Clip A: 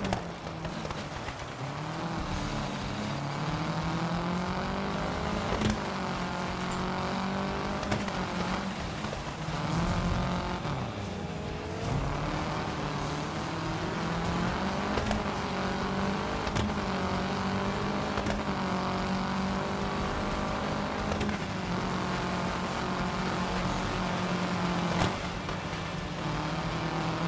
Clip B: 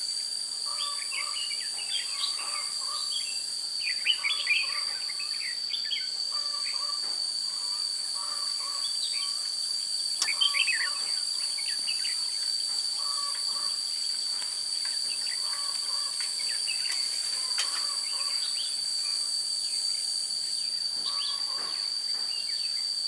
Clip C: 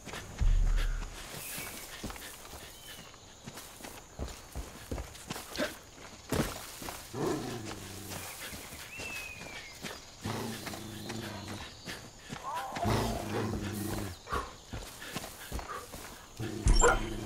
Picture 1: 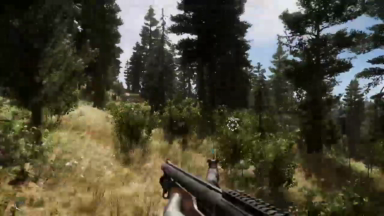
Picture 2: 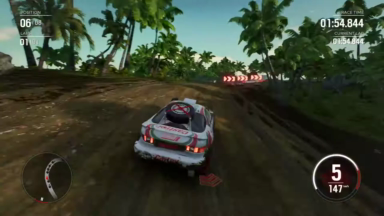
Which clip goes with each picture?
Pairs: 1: C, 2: A